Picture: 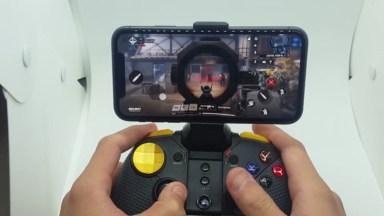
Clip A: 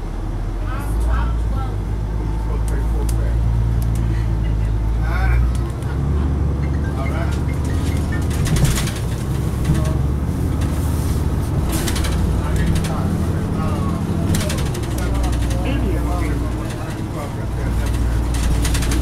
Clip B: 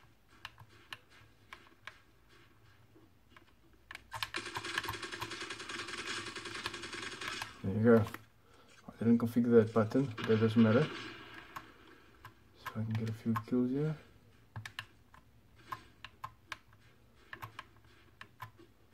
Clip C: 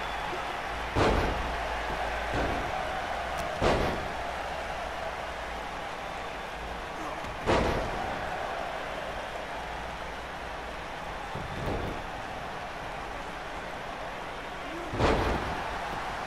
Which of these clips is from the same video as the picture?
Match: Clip B